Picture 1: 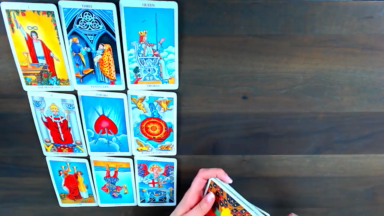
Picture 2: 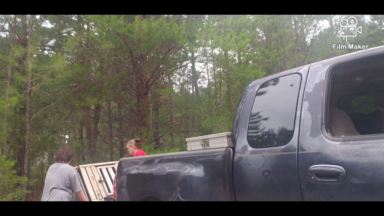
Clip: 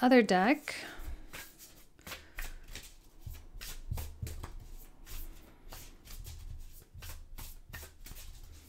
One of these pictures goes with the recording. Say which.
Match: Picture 1